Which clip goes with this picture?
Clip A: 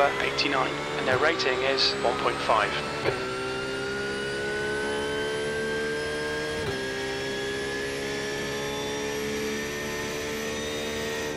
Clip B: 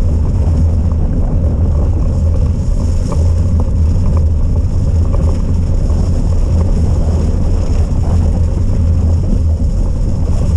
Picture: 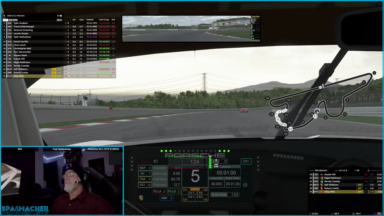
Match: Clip A